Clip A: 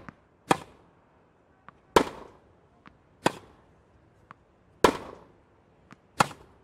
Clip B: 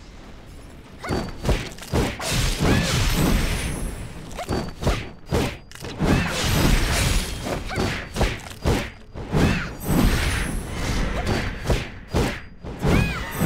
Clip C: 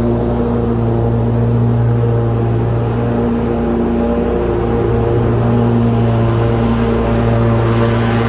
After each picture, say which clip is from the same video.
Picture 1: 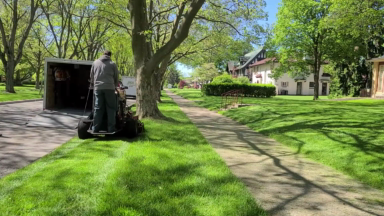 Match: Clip C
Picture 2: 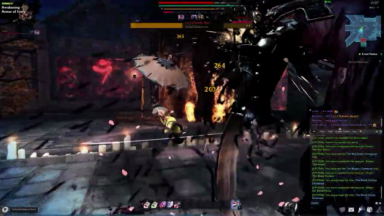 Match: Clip B